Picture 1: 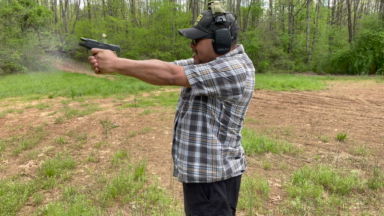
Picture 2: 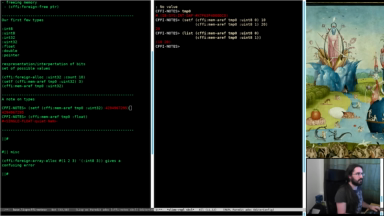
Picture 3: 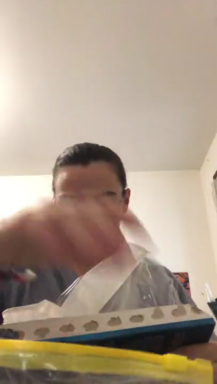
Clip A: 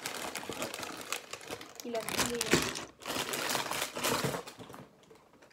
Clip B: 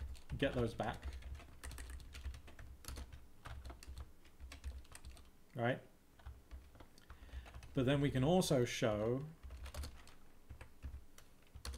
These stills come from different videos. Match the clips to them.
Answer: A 3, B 2